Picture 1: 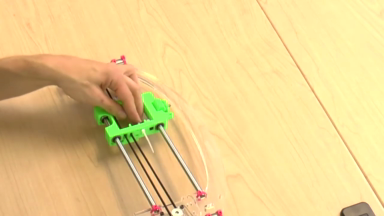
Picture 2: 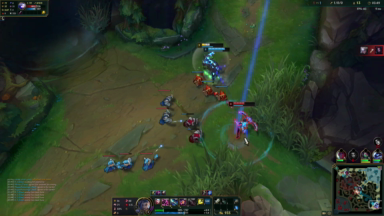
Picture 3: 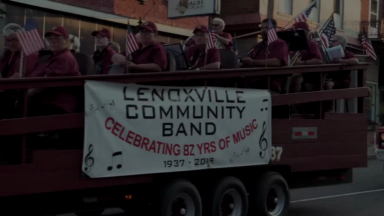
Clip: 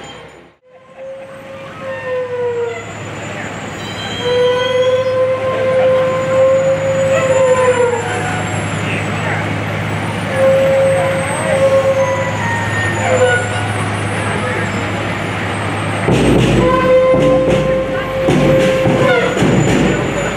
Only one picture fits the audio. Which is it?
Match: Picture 3